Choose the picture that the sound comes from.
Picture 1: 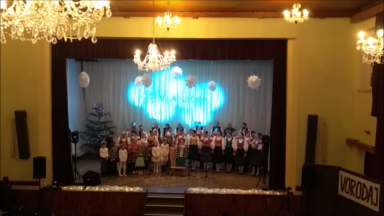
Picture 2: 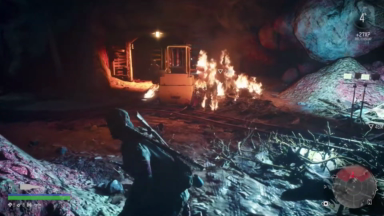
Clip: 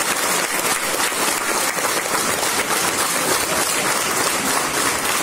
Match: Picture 1